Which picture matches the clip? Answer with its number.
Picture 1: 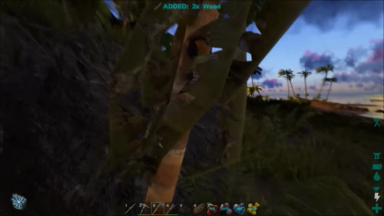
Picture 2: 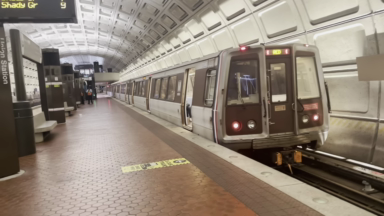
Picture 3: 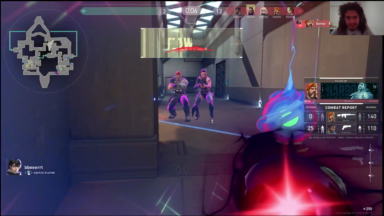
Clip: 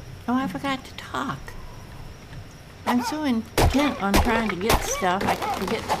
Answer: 1